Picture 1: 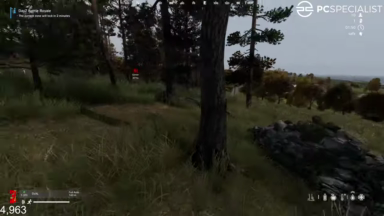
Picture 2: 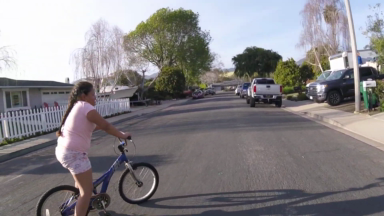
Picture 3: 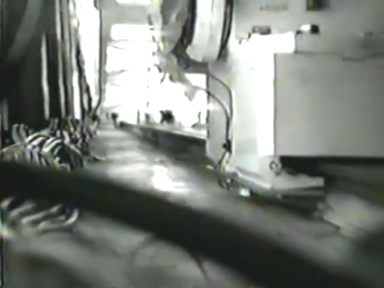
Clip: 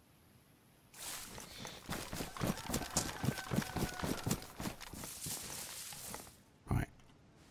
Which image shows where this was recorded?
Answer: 1